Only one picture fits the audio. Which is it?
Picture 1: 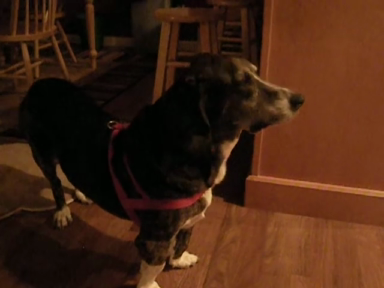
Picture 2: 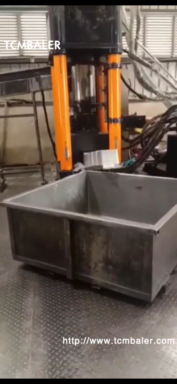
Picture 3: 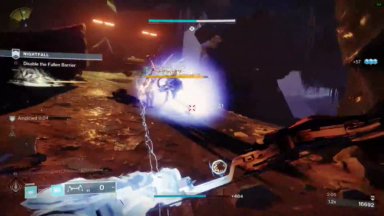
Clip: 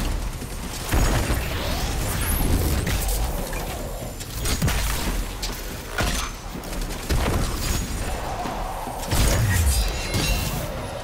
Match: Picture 3